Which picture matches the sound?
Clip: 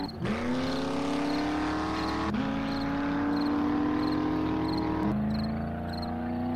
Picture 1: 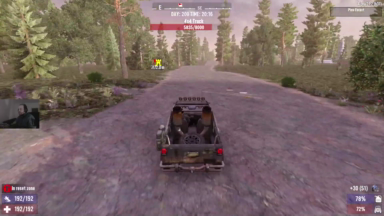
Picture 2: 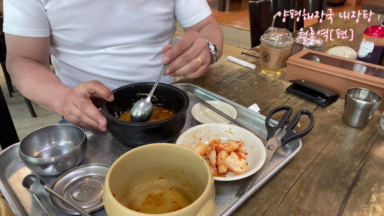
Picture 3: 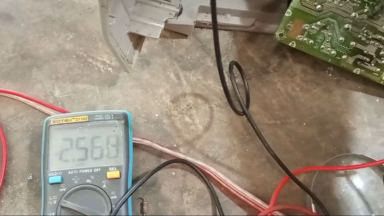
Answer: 1